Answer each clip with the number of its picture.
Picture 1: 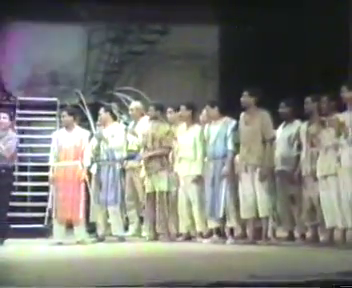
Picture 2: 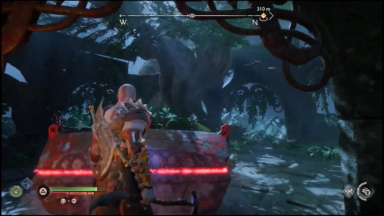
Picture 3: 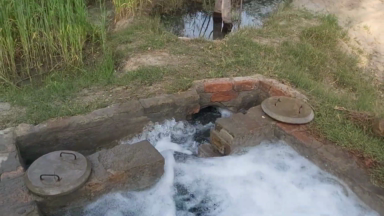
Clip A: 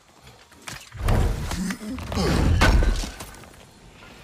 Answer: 2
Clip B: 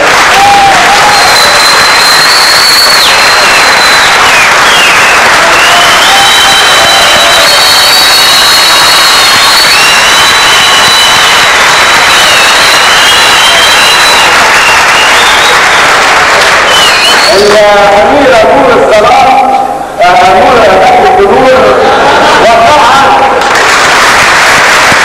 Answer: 1